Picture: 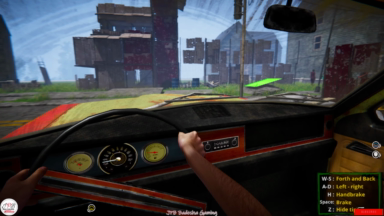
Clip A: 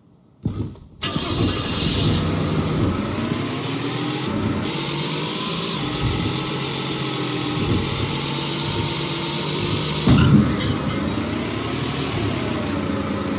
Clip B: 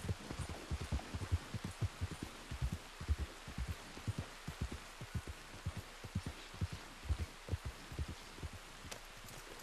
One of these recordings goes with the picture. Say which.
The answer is A